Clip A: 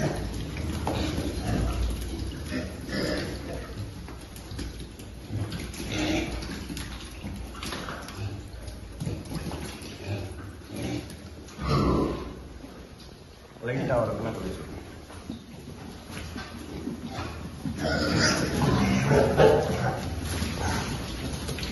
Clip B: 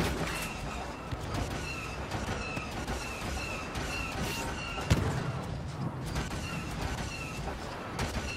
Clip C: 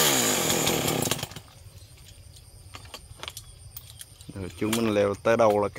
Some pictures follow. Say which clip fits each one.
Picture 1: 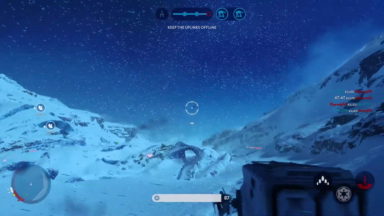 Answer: B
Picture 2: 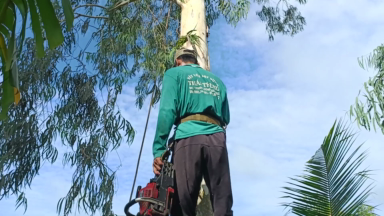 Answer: C